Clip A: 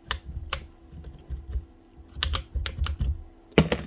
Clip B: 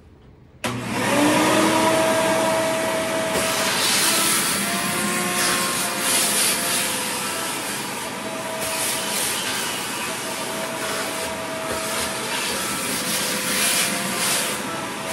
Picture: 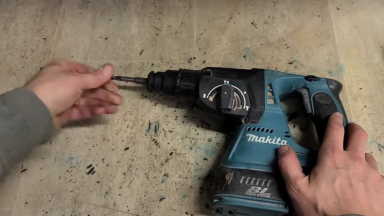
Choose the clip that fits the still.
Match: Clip A